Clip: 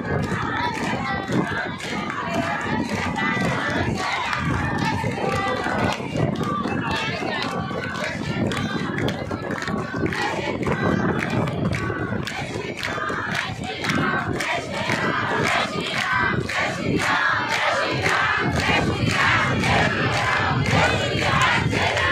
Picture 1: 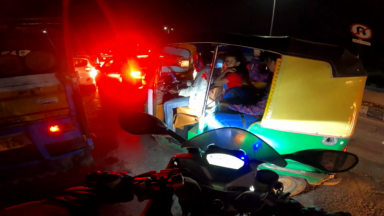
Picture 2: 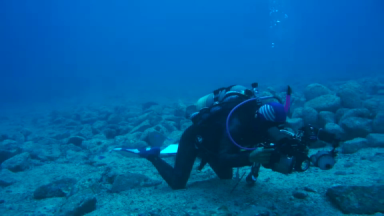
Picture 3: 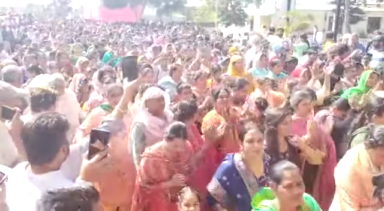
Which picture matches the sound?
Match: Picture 3